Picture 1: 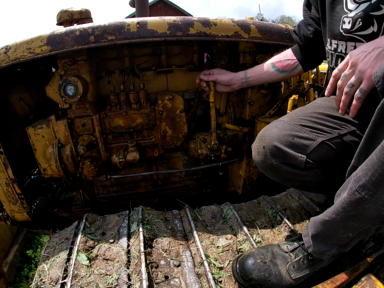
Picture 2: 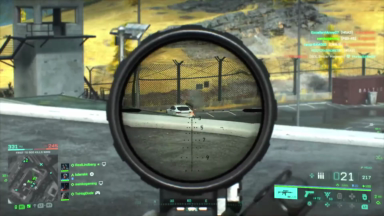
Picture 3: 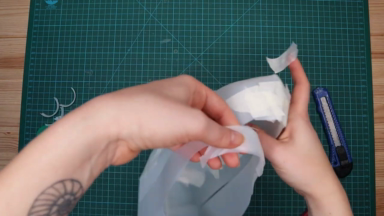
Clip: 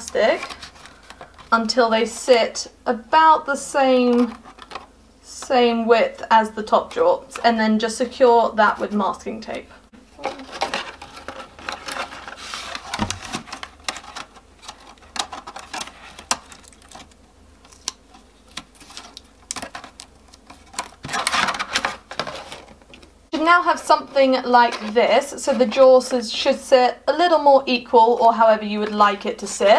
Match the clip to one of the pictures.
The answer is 3